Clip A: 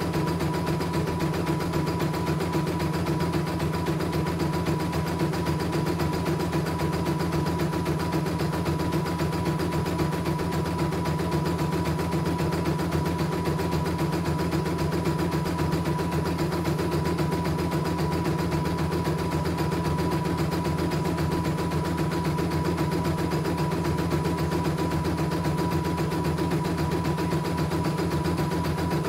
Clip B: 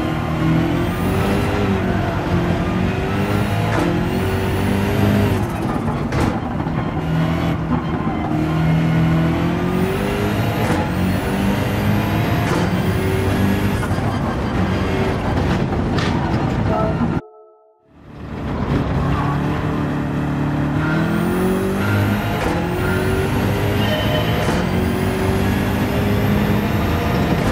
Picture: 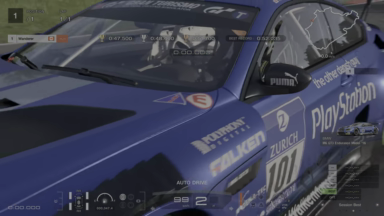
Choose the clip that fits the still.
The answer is B